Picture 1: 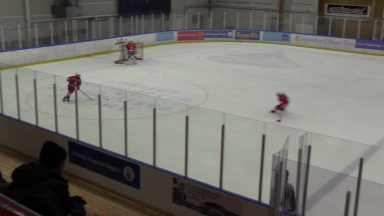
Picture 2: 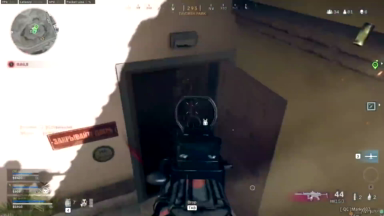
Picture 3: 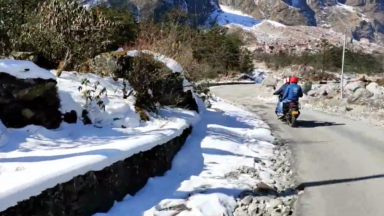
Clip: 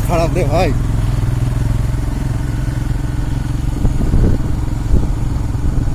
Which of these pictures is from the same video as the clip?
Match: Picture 3